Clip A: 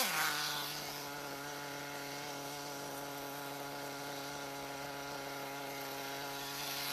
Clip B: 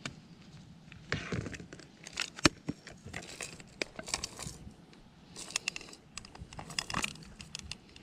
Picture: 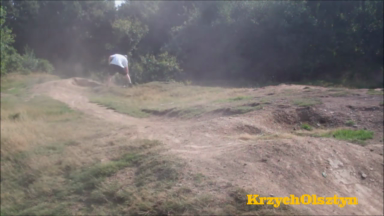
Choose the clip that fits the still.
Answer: A